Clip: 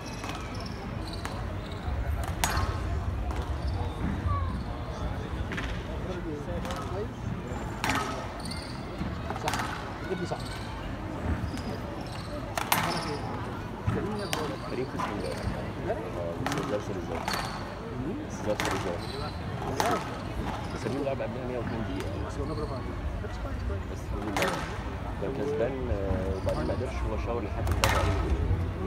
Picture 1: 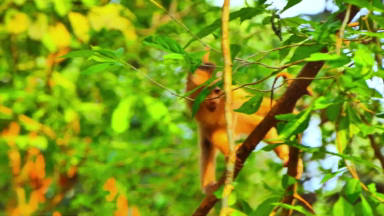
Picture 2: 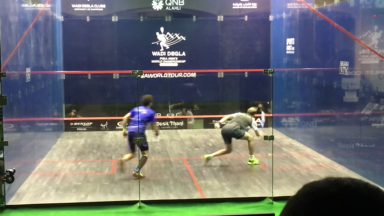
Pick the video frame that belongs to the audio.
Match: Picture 2